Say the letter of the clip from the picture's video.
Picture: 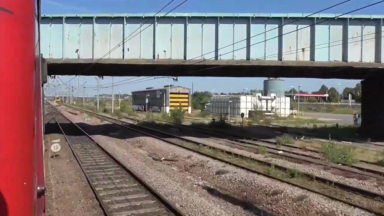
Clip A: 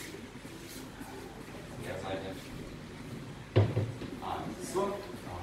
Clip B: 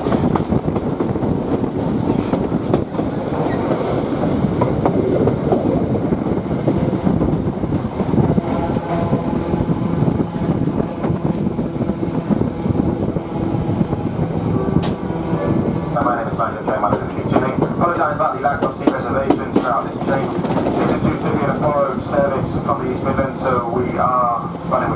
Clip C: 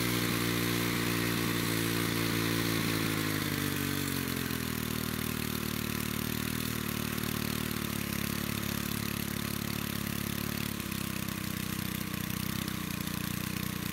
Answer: B